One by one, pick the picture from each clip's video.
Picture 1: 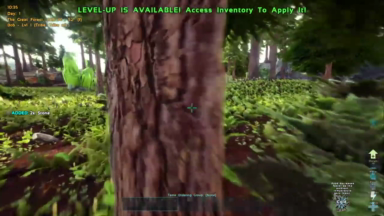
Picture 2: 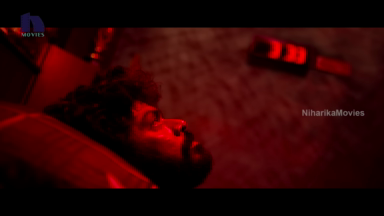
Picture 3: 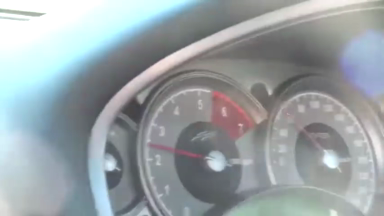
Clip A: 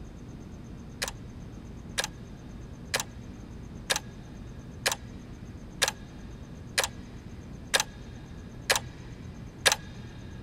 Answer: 2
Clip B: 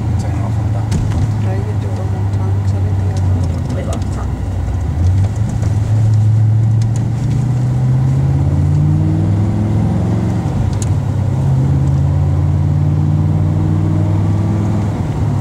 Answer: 3